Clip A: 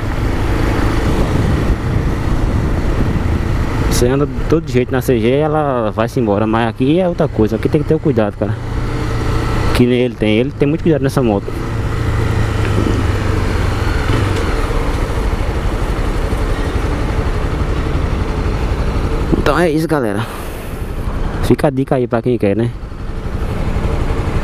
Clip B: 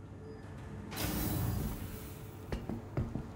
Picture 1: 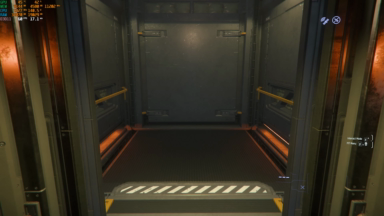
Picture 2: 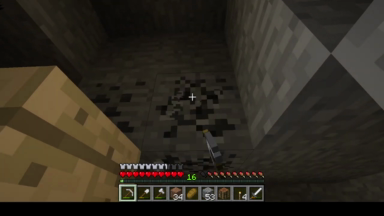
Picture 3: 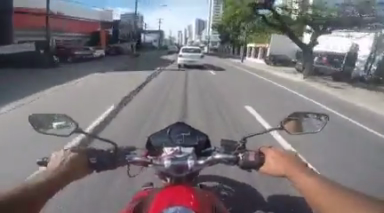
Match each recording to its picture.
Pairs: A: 3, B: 1